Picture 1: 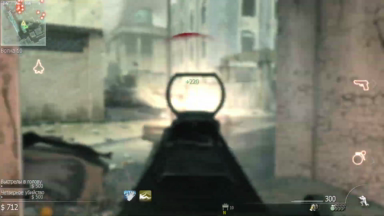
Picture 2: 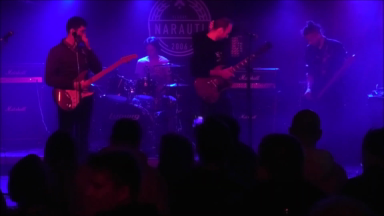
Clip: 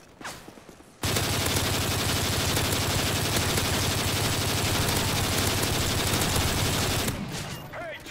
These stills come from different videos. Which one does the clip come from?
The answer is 1